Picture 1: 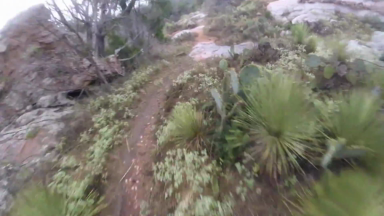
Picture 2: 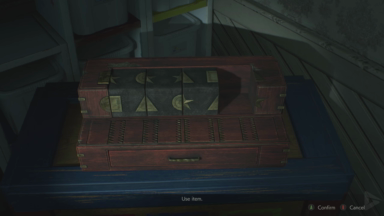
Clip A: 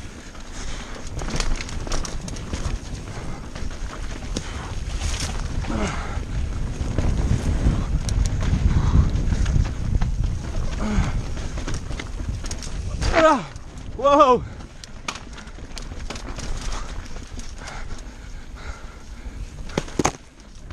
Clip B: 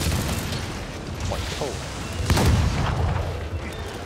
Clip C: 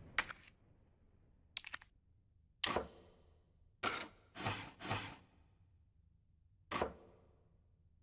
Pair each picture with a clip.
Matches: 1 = A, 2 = C